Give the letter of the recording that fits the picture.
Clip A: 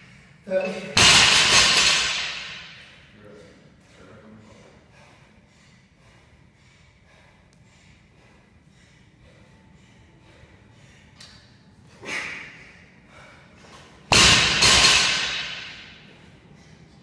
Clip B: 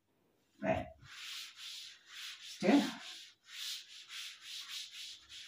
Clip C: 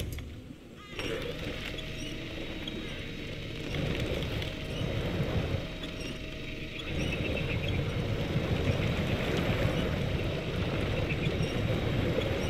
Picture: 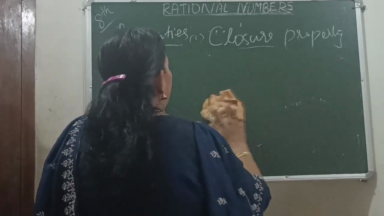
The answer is B